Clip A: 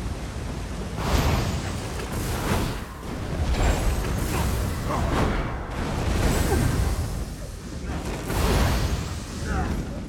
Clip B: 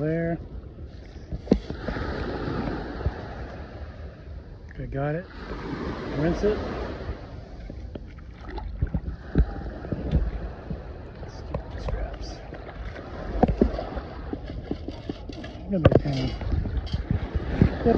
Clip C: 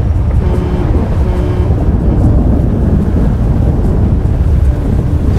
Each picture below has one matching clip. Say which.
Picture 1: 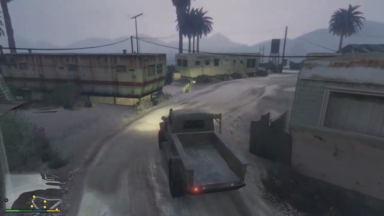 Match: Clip C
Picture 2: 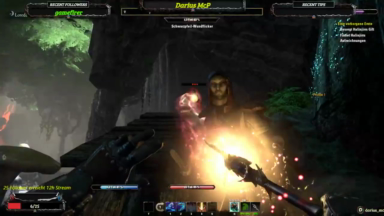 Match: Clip A